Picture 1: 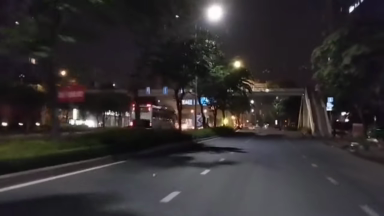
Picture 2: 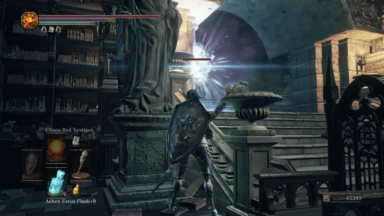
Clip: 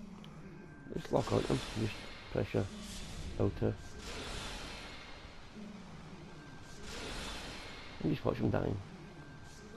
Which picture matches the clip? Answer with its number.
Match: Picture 2